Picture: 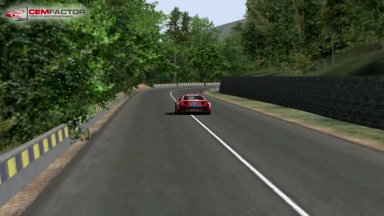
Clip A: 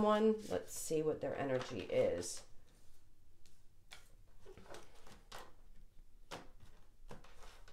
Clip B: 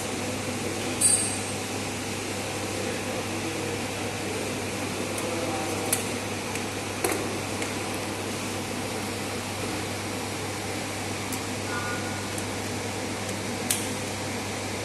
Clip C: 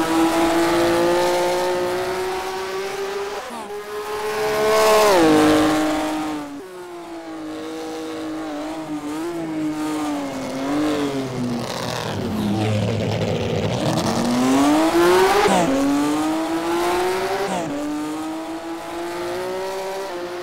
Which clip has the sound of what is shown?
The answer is C